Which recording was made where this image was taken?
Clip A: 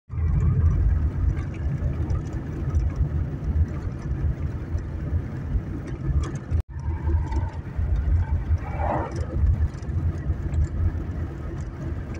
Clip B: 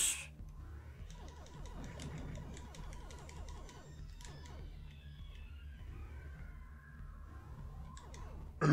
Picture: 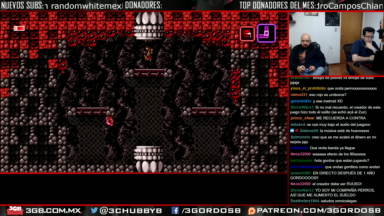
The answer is B